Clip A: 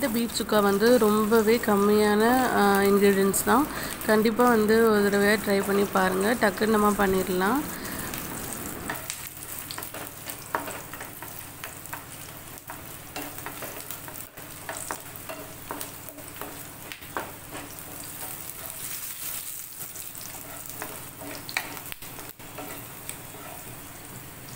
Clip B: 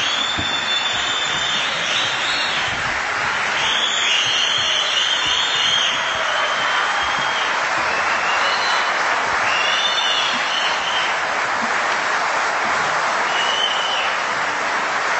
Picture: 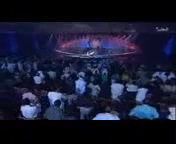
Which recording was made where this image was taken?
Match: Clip B